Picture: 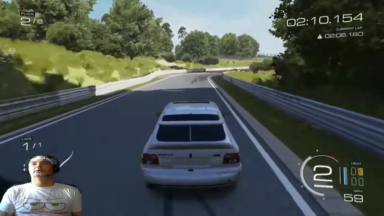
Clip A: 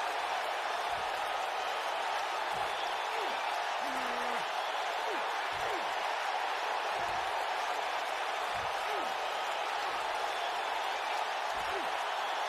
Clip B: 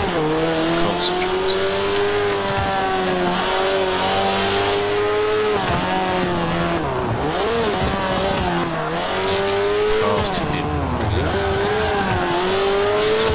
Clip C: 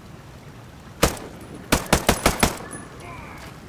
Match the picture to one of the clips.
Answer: B